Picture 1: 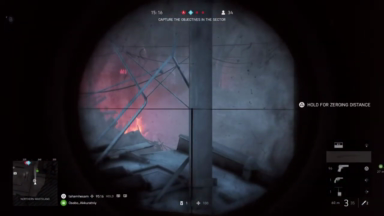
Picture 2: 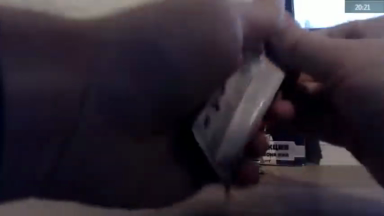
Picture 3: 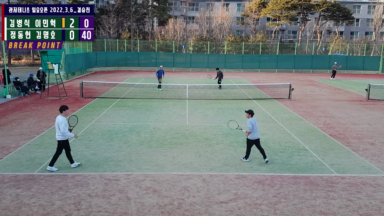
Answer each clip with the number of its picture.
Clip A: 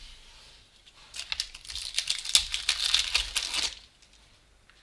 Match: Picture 2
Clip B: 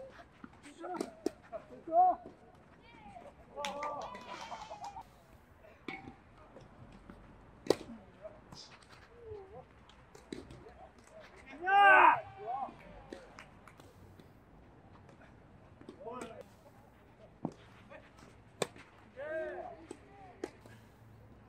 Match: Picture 3